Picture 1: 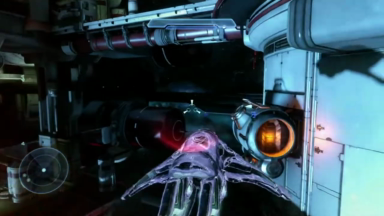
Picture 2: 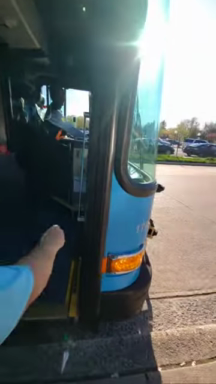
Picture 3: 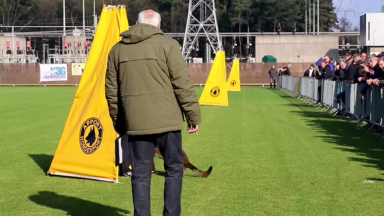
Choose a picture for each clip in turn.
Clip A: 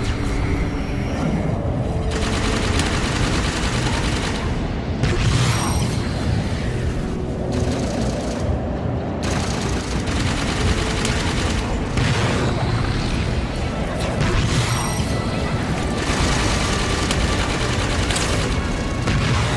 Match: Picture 1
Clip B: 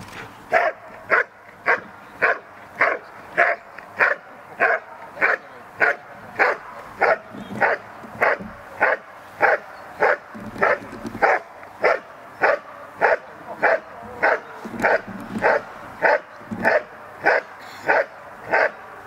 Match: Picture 3